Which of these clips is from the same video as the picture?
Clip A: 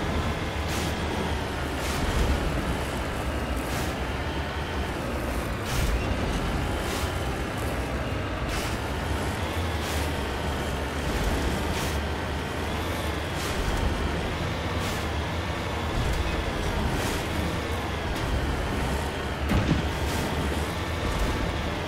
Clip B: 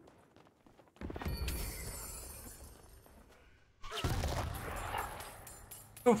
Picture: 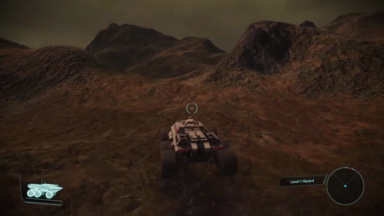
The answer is A